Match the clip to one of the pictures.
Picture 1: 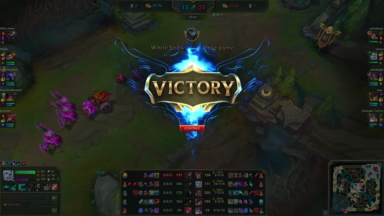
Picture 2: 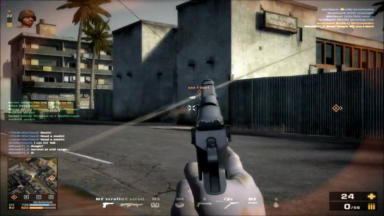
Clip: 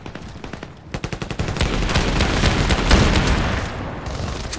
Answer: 2